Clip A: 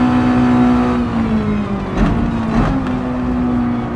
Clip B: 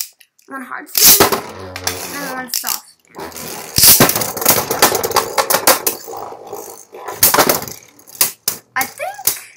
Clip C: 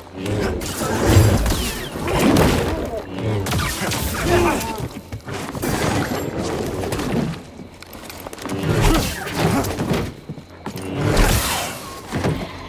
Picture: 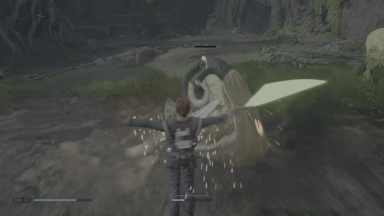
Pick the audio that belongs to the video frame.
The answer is C